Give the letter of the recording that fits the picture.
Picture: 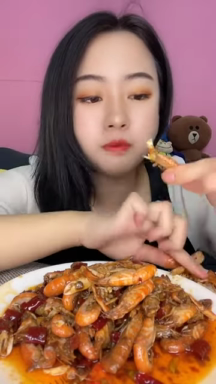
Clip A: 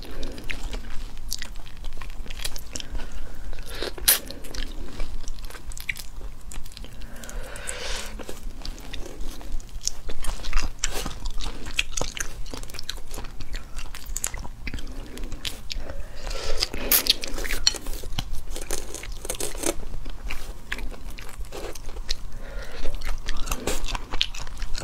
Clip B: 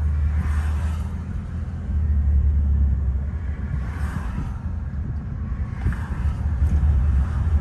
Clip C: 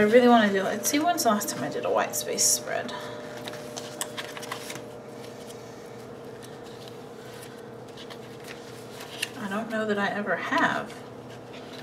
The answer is A